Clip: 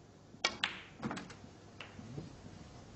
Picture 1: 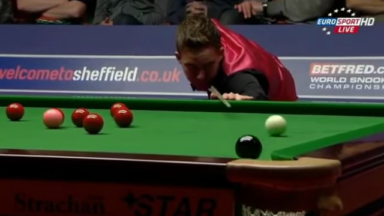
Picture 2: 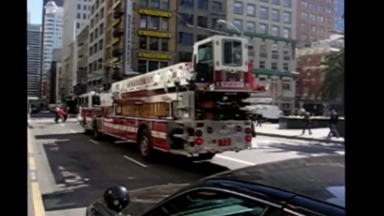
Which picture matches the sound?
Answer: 1